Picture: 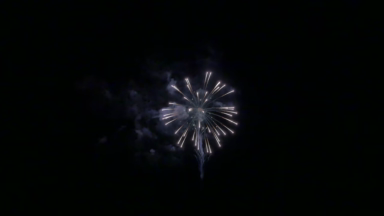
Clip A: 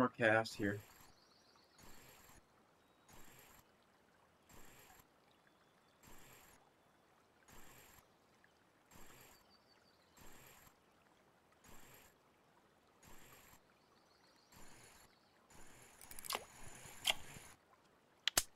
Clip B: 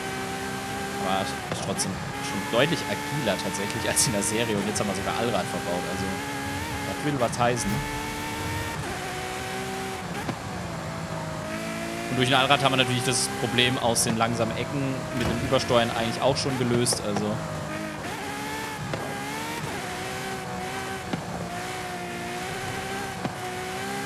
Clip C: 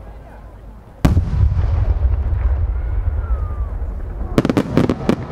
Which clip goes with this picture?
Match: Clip C